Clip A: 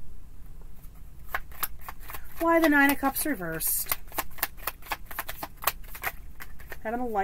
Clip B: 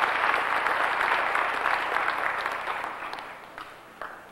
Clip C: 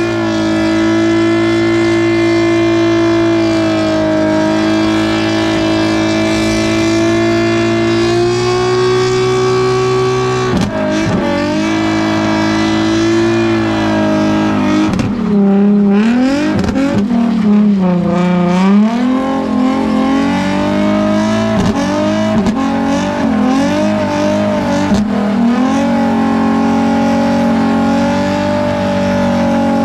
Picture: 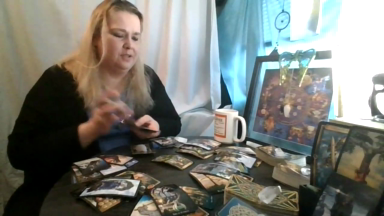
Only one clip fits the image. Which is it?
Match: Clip A